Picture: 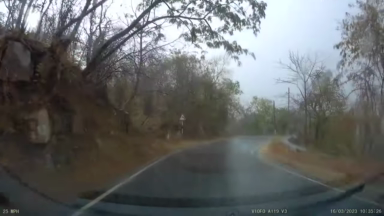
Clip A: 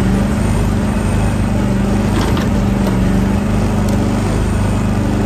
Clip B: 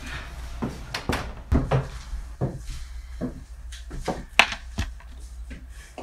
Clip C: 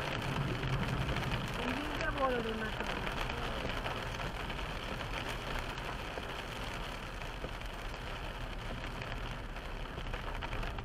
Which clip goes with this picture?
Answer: C